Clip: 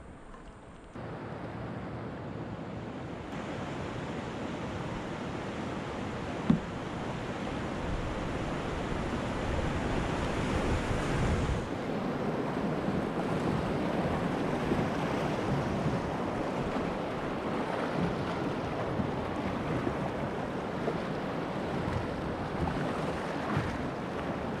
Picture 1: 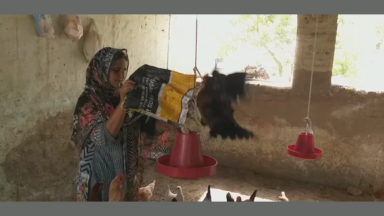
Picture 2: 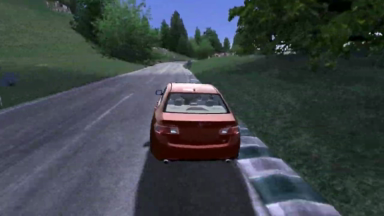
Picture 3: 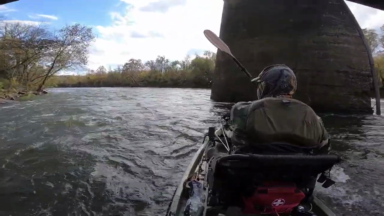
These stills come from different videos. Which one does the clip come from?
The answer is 3